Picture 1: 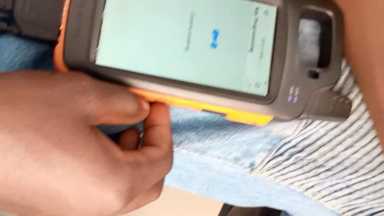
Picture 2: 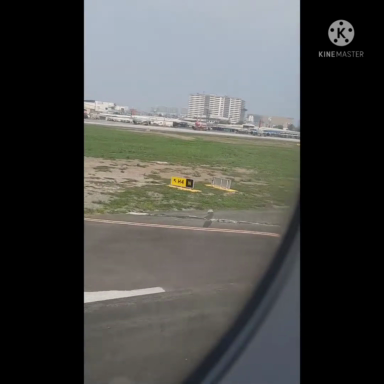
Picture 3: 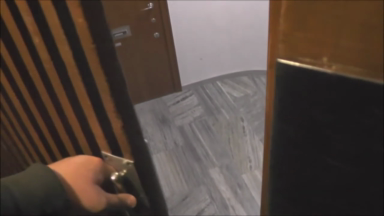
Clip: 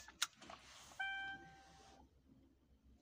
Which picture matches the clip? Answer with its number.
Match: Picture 1